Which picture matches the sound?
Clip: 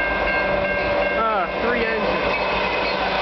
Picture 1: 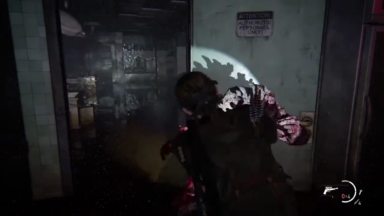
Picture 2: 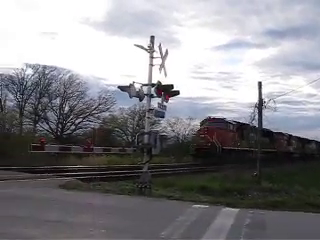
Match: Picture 2